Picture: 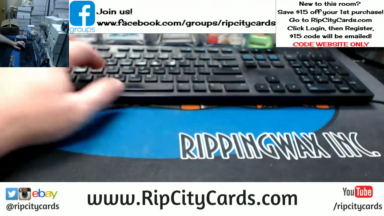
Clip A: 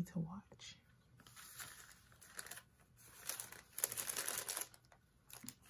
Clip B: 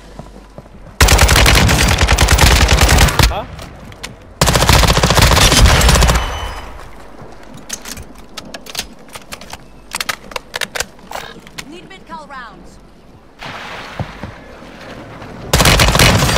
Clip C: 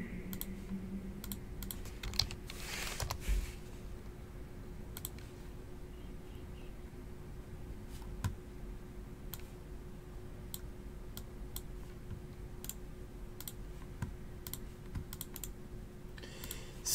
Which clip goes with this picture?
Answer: C